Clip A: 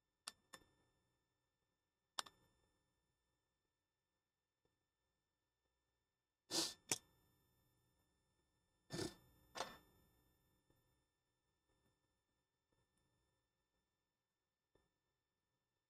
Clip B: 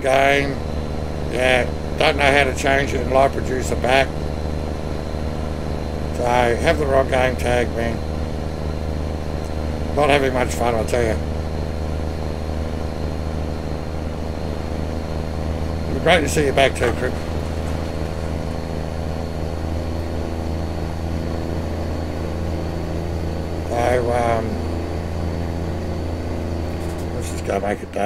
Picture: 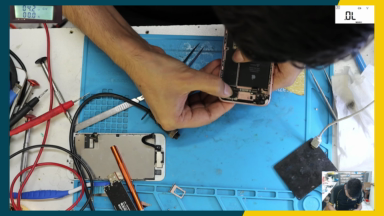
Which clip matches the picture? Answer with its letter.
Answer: A